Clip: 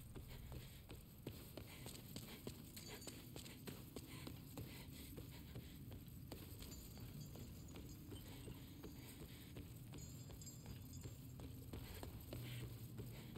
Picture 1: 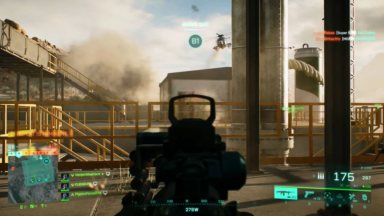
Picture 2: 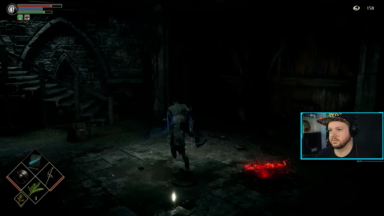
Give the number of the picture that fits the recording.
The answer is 2